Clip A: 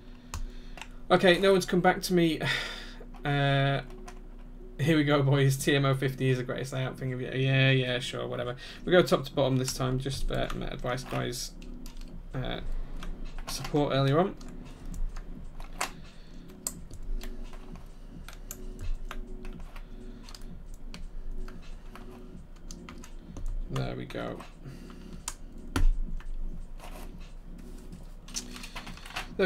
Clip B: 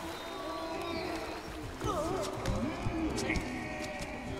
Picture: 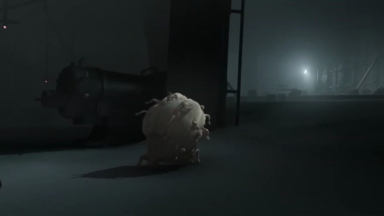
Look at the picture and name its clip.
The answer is B